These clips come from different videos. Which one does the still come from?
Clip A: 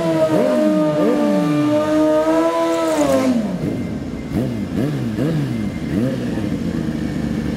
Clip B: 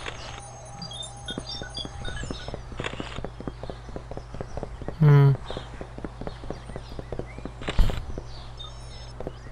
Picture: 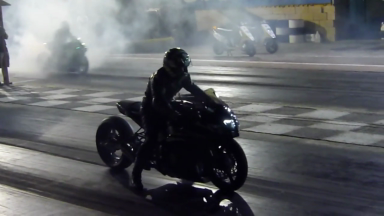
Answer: A